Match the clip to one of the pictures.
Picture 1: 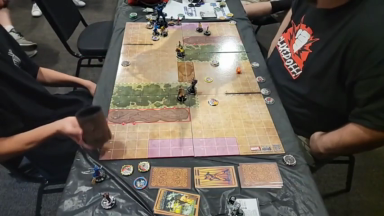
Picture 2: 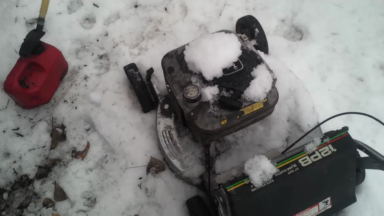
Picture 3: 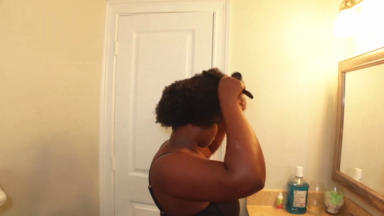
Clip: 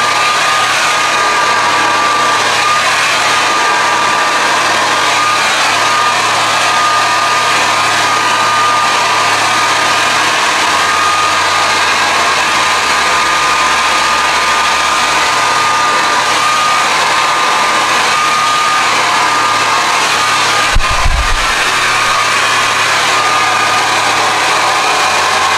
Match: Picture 3